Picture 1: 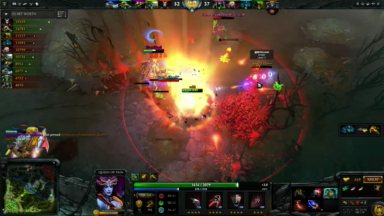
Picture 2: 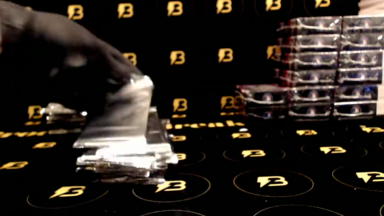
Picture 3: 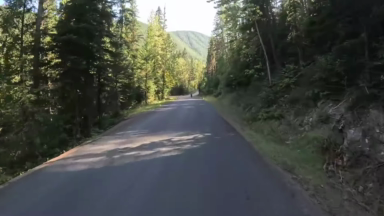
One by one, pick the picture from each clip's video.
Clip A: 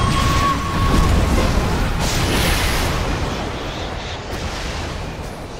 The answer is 1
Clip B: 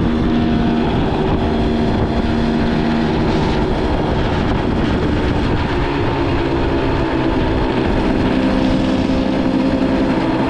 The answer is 3